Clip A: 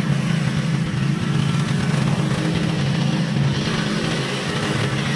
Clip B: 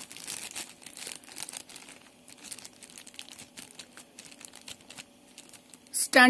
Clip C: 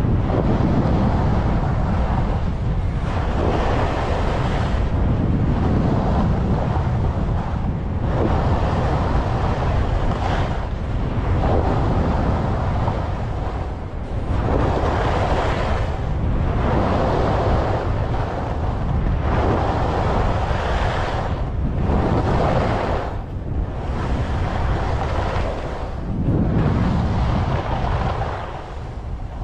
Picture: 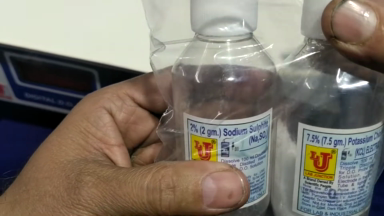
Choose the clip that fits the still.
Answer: B